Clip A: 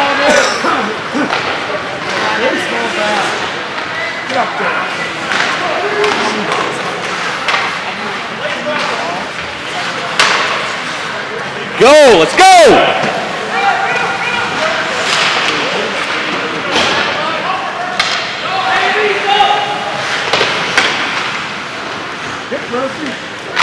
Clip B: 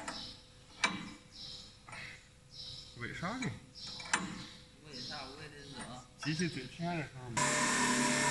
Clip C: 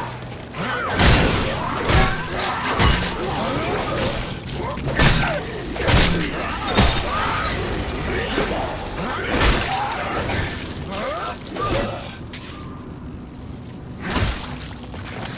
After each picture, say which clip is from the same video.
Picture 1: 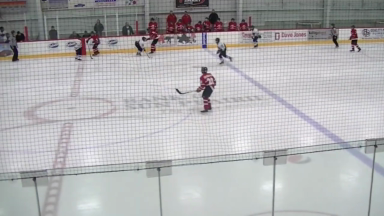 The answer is A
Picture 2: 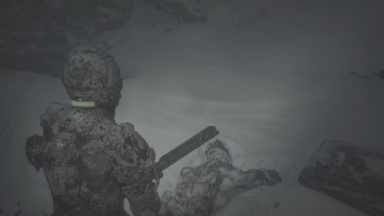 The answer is C